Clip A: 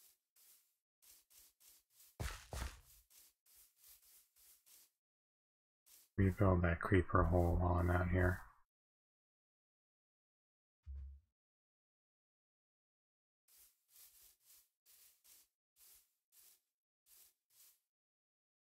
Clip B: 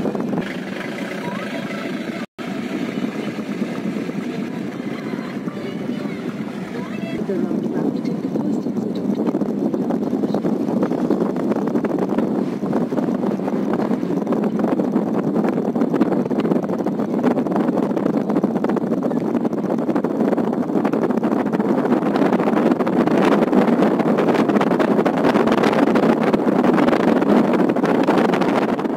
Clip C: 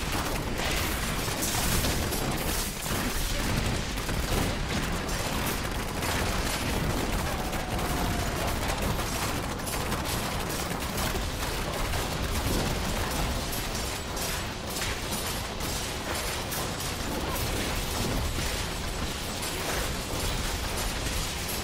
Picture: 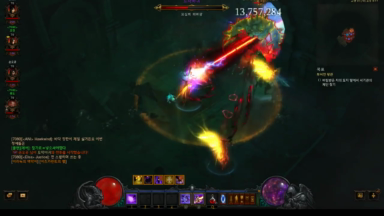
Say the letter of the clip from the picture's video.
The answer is C